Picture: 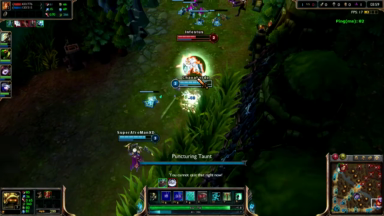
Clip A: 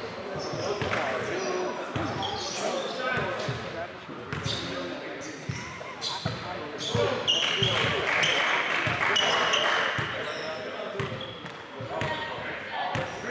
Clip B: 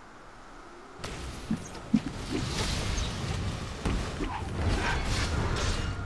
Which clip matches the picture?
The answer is B